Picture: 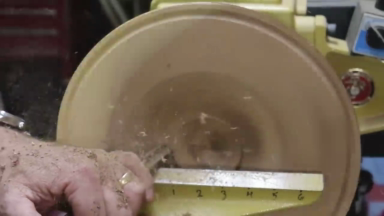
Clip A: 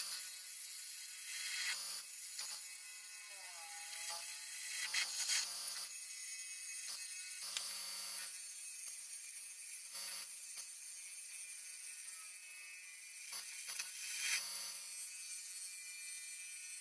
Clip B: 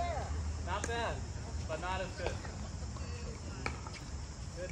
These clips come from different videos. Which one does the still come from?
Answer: A